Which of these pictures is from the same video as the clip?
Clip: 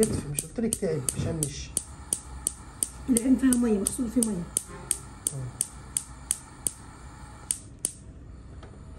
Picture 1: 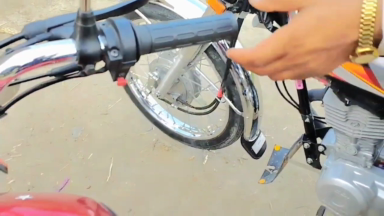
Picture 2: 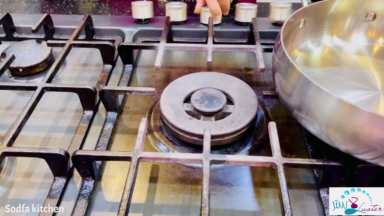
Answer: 2